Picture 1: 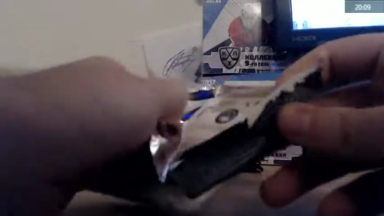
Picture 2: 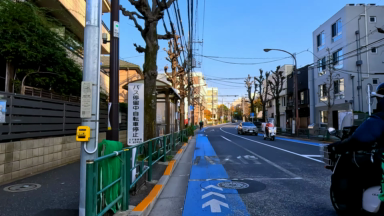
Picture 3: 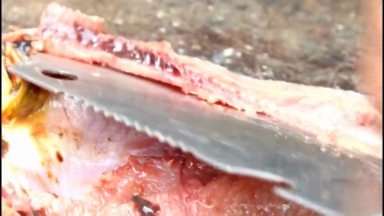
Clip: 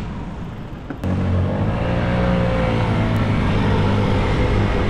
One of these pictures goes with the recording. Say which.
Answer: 2